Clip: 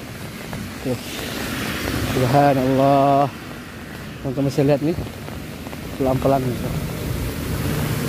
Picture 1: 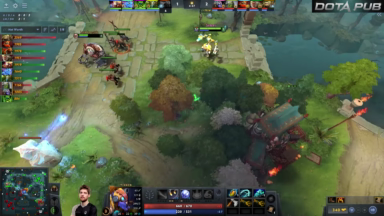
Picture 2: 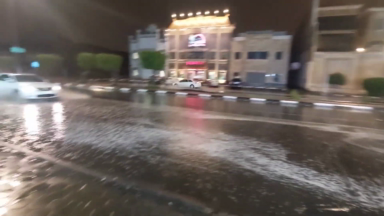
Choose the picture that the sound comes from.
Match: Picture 2